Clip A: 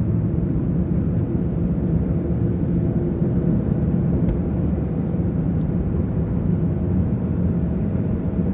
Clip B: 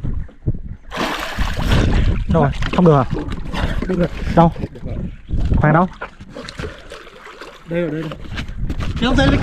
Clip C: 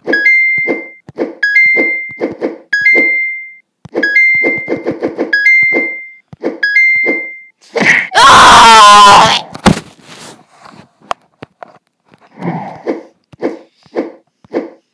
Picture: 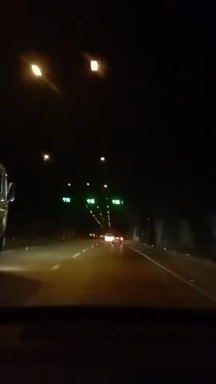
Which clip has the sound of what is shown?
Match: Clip A